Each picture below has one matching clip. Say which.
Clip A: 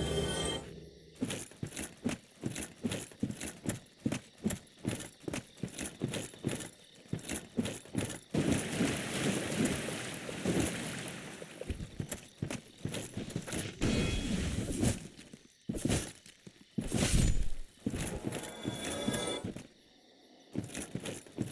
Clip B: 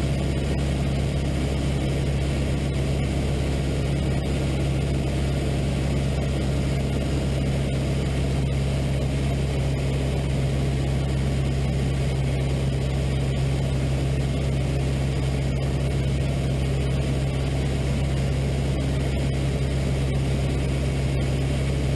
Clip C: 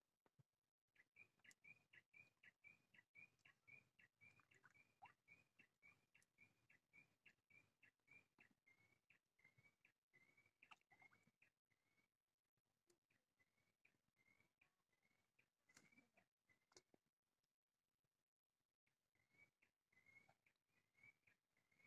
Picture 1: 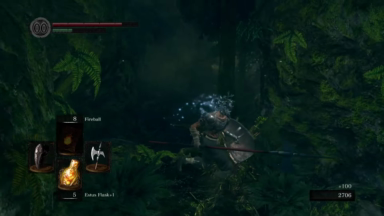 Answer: A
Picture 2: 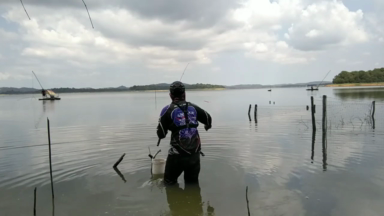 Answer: C